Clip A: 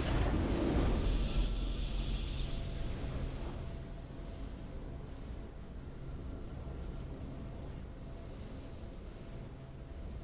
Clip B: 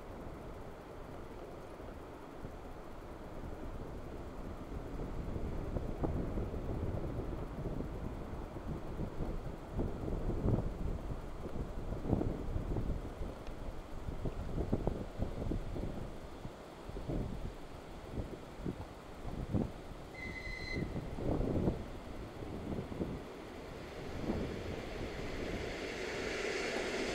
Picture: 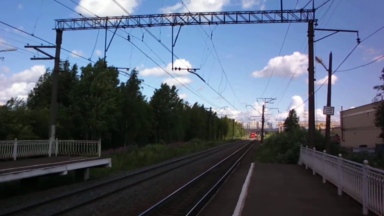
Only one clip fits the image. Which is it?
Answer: B